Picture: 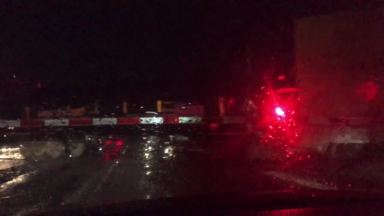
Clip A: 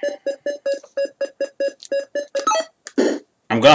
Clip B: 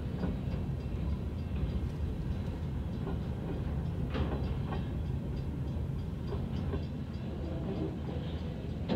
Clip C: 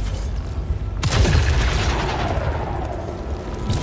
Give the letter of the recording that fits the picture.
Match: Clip B